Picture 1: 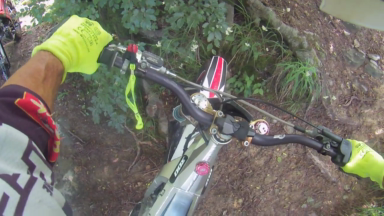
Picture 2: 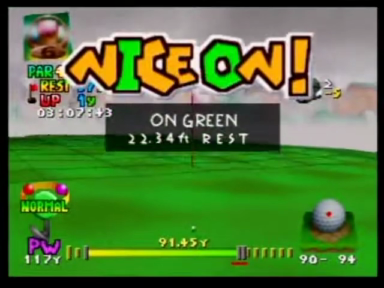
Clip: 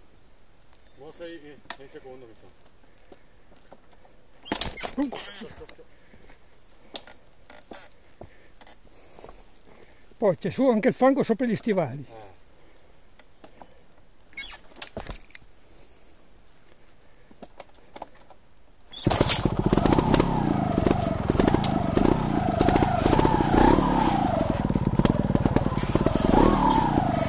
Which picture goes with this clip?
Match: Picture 1